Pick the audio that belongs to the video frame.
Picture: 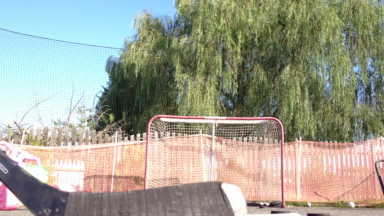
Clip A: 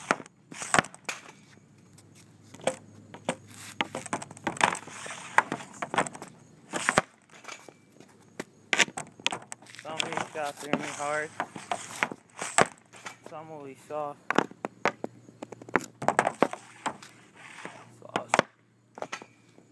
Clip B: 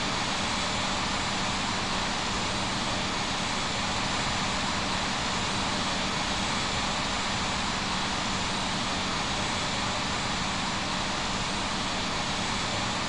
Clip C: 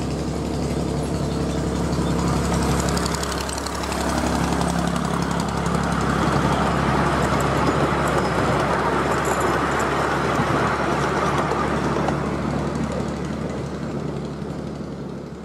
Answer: A